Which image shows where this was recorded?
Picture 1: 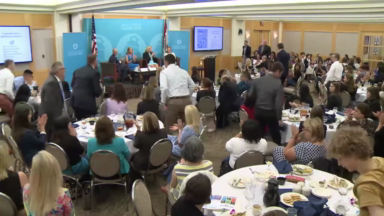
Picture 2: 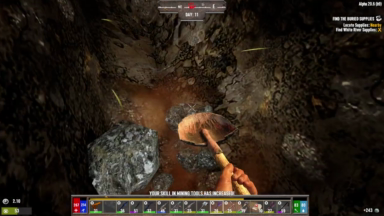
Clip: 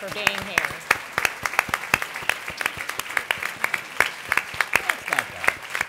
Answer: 1